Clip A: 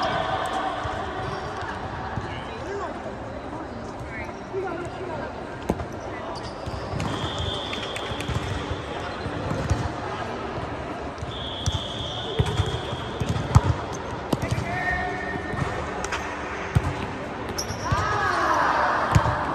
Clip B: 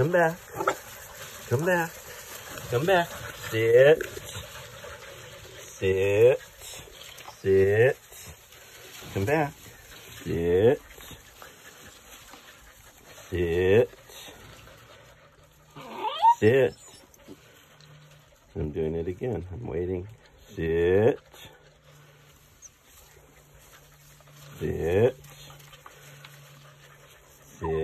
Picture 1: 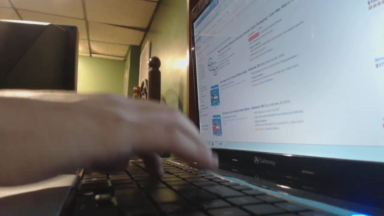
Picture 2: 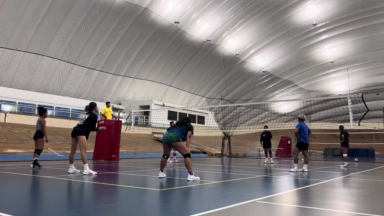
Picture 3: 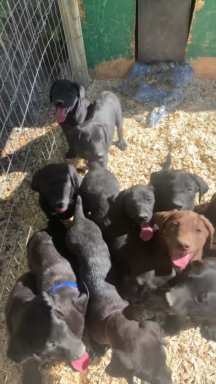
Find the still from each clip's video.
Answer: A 2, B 3